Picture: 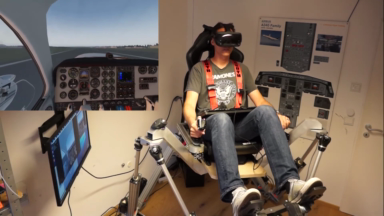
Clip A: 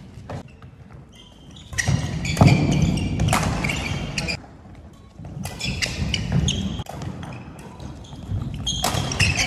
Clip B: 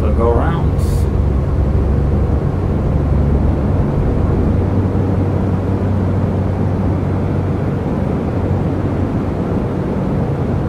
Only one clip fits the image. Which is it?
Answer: B